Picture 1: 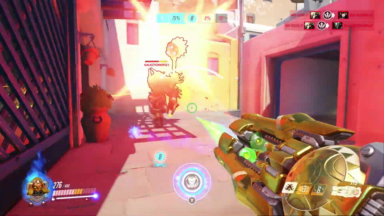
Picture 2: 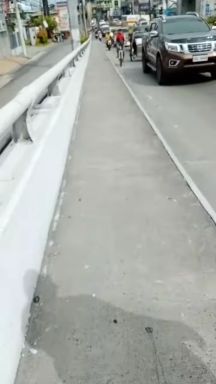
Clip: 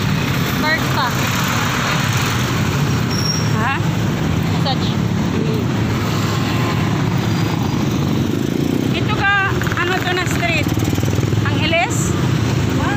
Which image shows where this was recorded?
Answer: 2